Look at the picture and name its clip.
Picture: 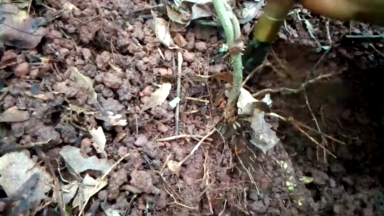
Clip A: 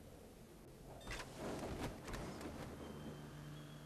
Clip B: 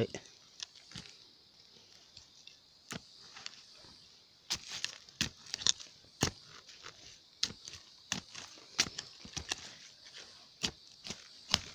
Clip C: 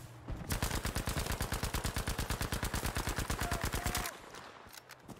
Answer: B